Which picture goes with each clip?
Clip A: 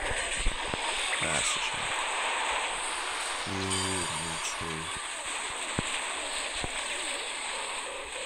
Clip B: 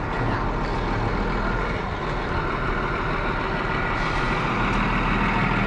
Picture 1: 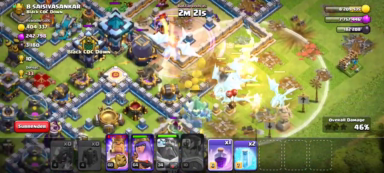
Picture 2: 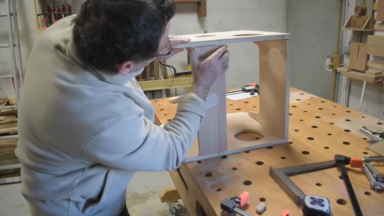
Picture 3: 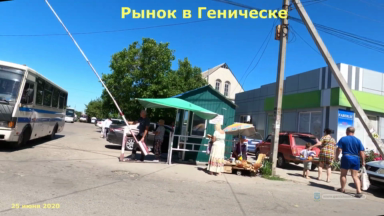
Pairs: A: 1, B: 3